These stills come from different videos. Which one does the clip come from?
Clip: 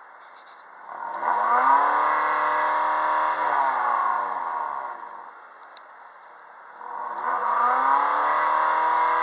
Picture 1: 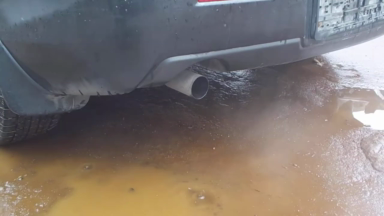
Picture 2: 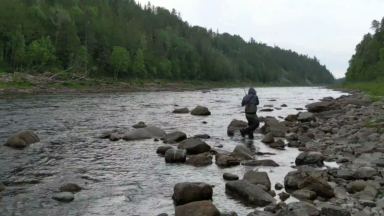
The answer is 1